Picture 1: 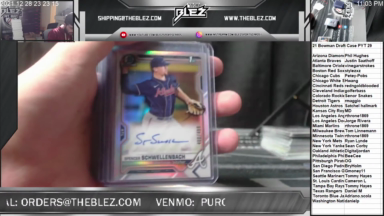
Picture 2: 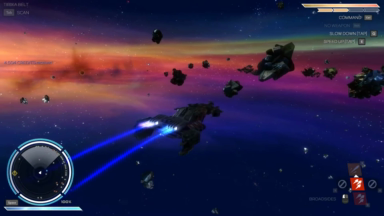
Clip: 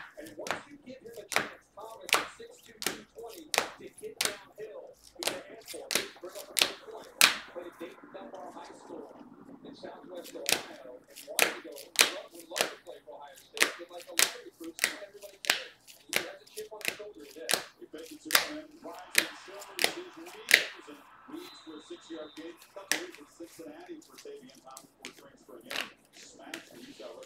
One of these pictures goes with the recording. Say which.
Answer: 1